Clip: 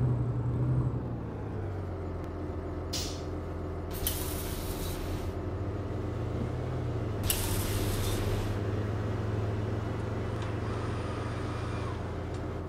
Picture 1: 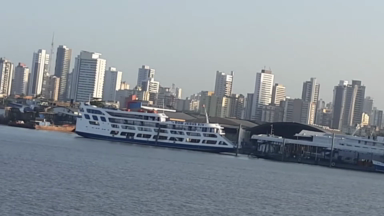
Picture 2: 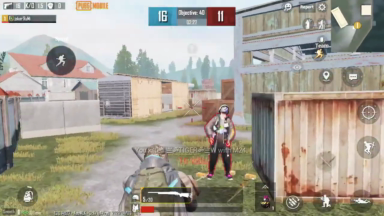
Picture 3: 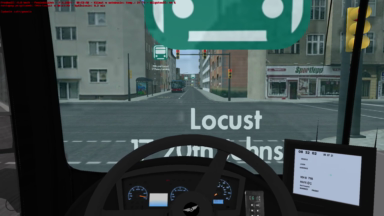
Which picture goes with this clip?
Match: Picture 3